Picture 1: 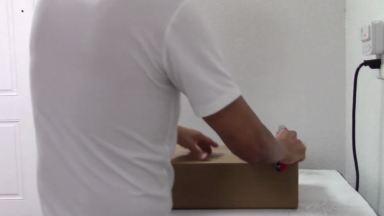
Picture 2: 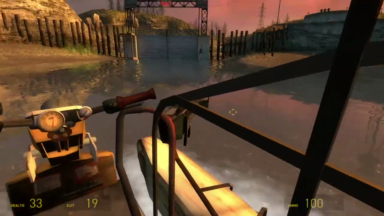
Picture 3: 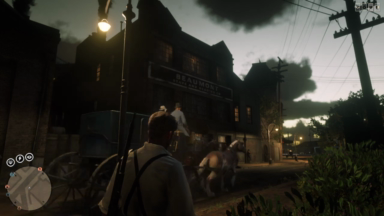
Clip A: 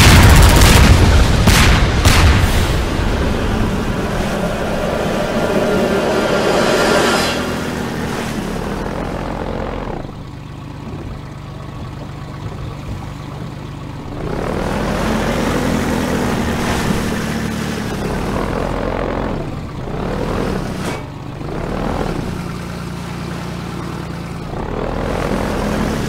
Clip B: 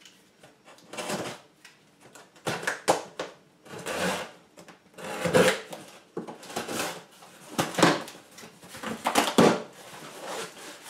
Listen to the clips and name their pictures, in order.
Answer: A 2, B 1